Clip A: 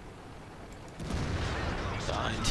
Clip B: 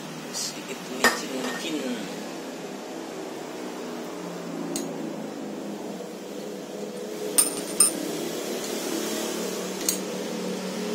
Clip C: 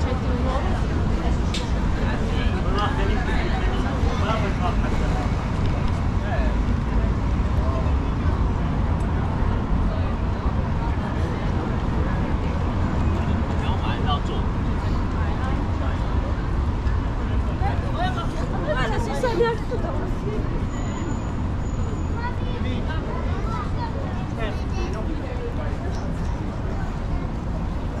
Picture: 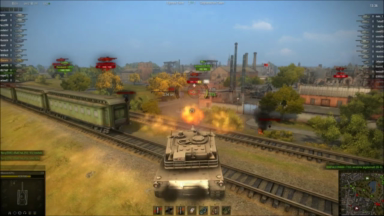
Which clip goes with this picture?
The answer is A